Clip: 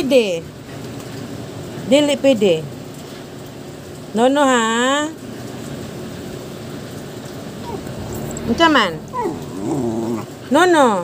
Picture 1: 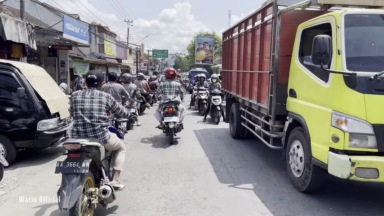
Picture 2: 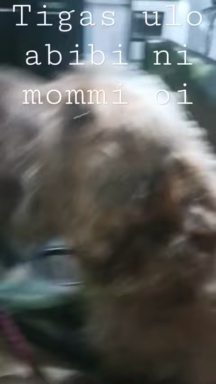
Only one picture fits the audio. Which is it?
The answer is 2